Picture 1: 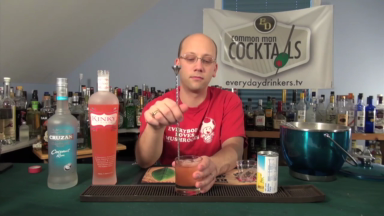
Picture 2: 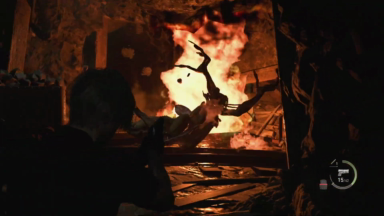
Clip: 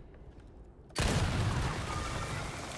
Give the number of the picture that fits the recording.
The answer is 2